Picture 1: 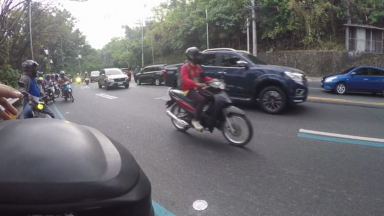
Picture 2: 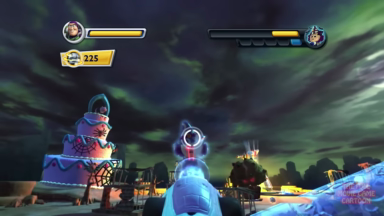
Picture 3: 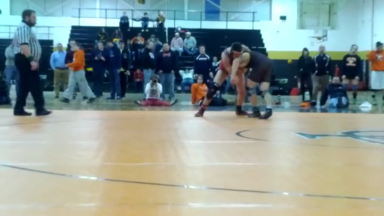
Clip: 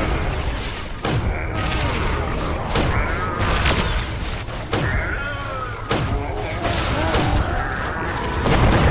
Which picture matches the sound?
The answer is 2